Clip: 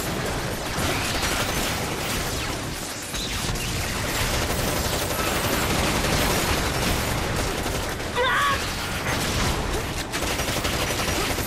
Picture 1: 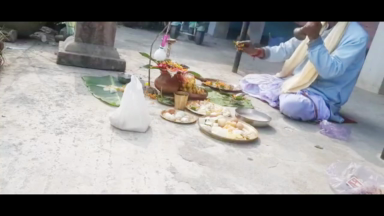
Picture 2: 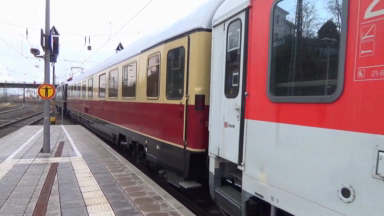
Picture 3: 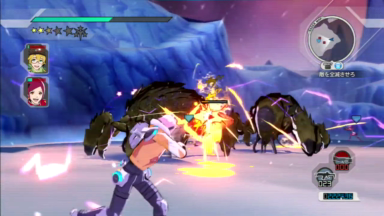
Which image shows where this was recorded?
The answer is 3